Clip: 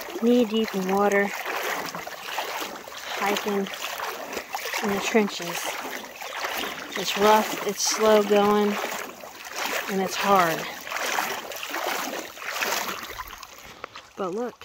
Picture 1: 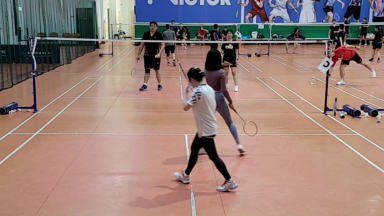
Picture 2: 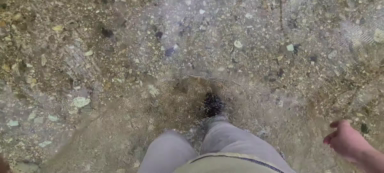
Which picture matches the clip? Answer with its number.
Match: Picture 2